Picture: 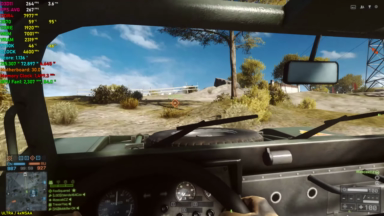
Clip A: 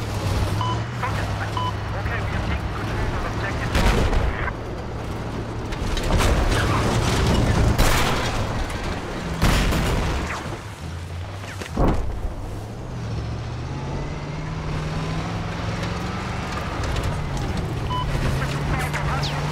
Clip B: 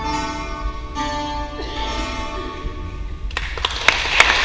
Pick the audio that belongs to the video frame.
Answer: A